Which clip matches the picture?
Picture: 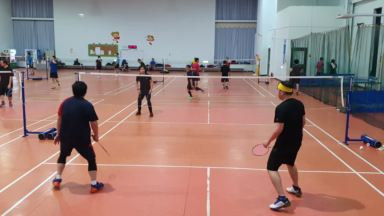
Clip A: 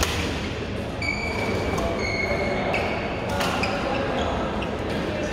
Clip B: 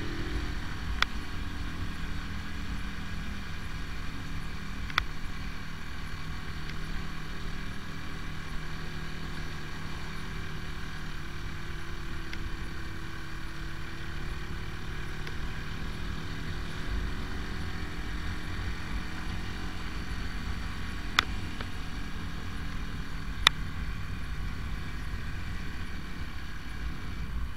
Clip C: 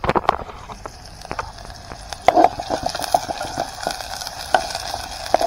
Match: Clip A